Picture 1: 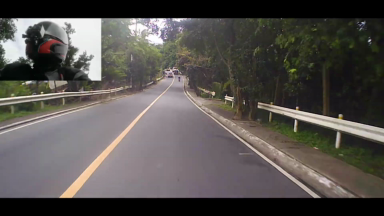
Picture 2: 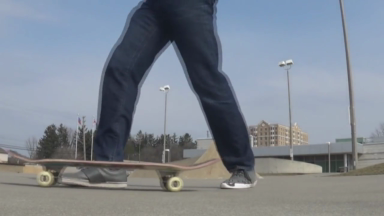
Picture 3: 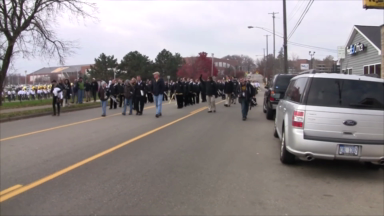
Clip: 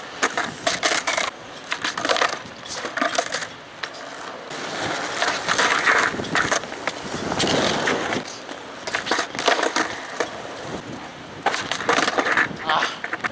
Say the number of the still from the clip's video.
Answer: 2